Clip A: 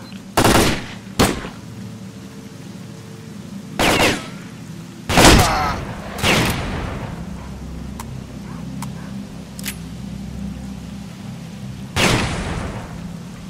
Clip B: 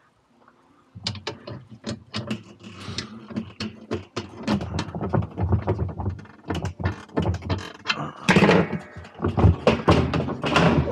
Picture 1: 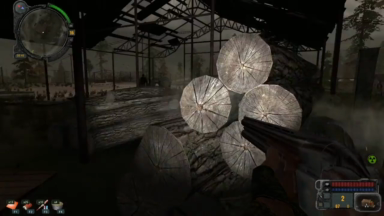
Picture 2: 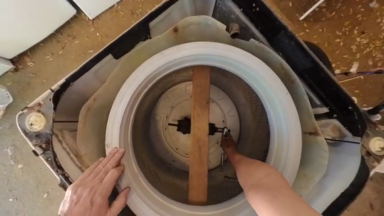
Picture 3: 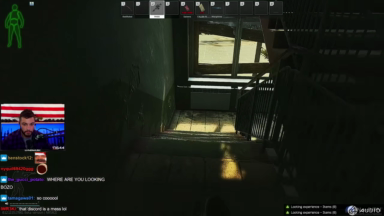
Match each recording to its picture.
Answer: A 1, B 2